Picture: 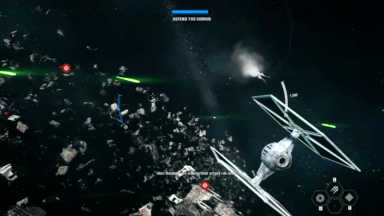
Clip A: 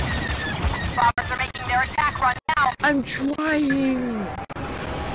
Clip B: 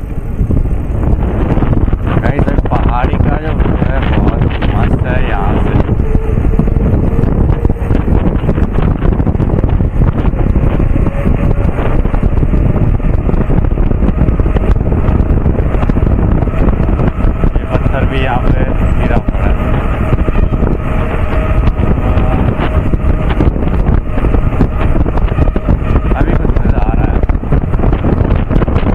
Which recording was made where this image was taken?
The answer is A